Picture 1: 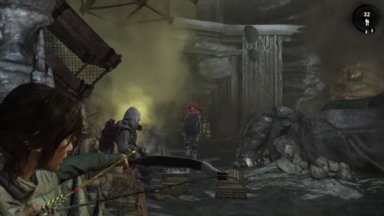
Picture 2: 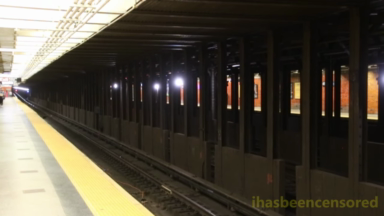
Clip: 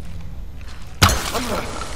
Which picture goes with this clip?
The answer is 1